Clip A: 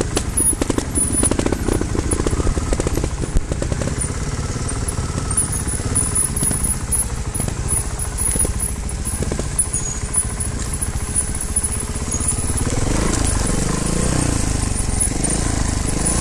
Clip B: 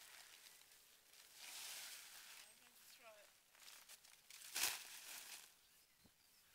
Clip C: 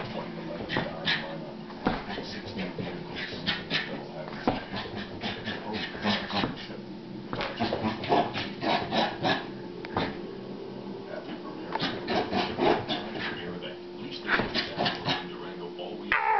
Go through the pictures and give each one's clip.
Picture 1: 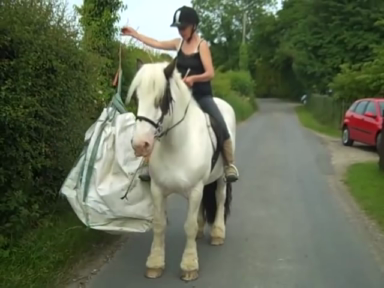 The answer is B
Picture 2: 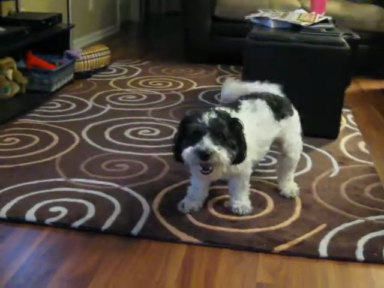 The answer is C